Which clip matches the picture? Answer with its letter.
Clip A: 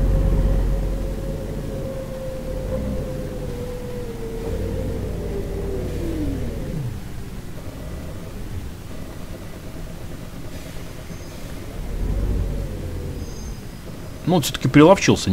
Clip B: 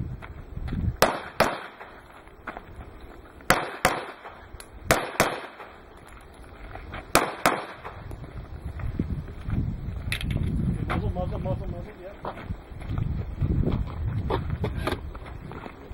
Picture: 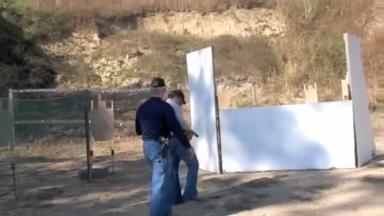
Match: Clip B